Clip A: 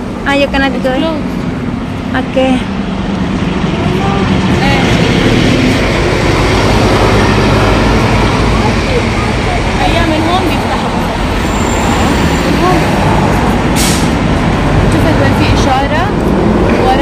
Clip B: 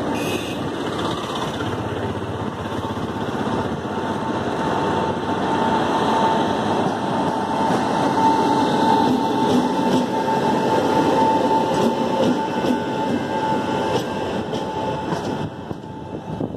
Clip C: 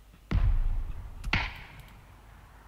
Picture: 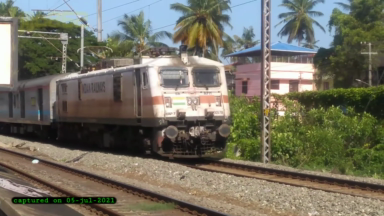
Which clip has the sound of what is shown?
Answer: B